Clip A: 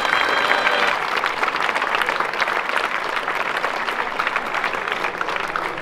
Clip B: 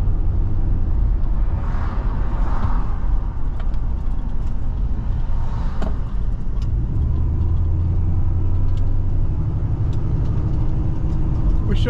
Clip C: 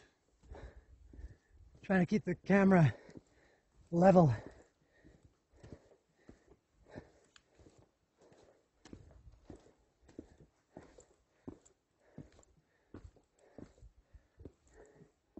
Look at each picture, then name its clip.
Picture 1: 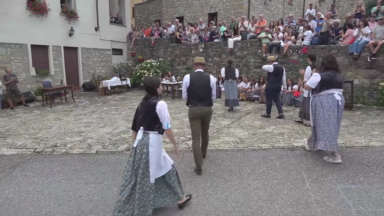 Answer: A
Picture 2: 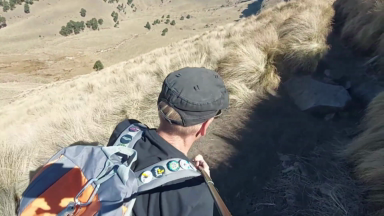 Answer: C